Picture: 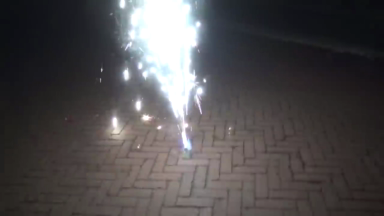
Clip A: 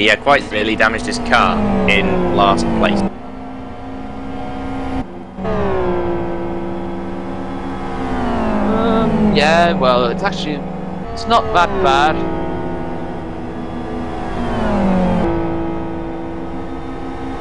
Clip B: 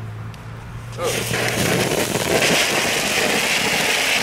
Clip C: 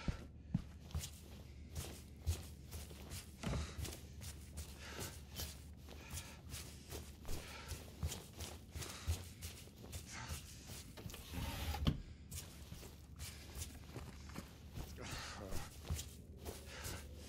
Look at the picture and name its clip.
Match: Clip B